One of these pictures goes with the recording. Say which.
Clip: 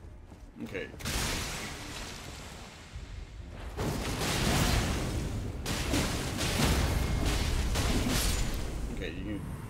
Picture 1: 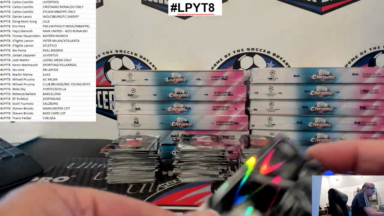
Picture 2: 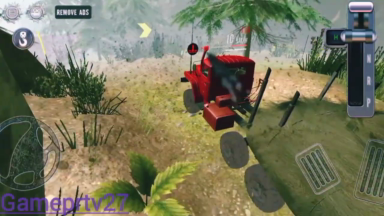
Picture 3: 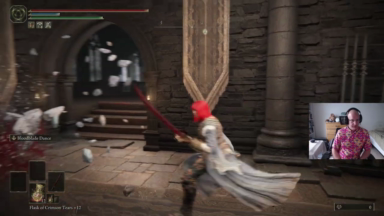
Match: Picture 3